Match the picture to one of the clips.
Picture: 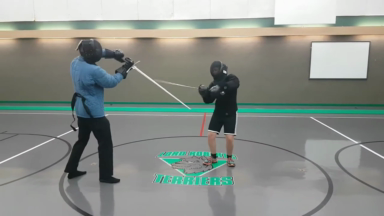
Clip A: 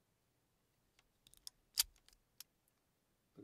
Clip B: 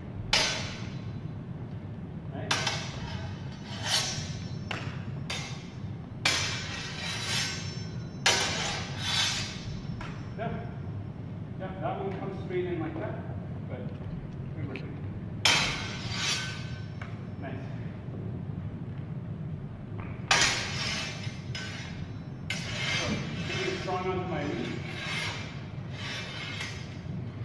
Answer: B